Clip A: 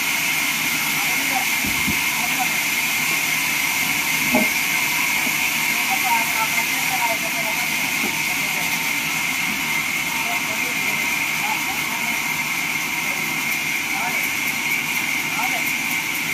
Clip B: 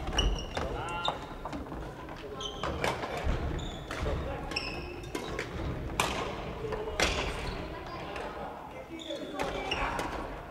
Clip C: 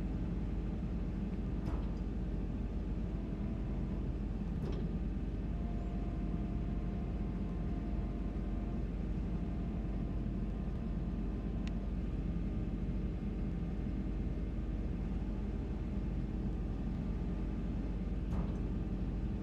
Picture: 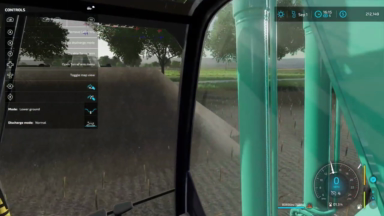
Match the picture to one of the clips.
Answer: C